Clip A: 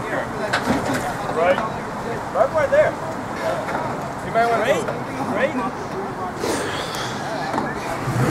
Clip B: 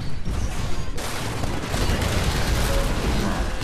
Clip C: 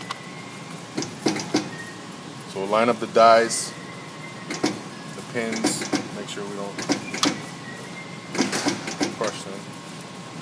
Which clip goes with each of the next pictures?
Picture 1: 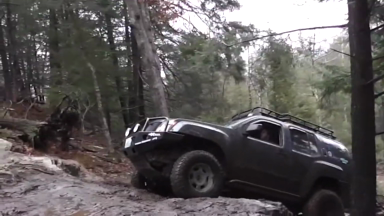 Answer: A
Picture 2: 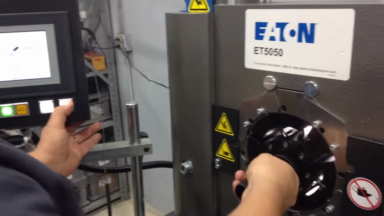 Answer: C